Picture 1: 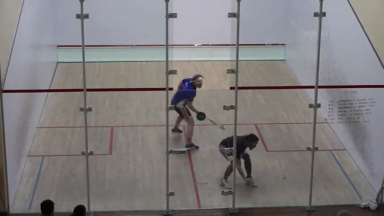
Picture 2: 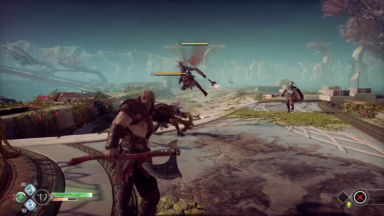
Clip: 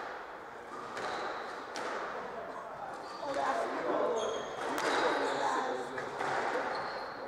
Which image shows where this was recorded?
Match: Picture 1